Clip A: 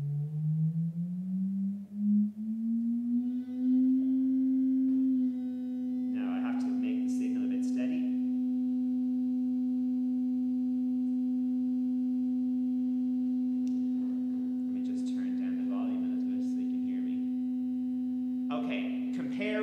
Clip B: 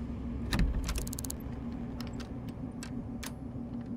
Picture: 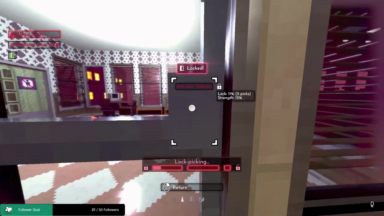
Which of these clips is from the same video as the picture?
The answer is B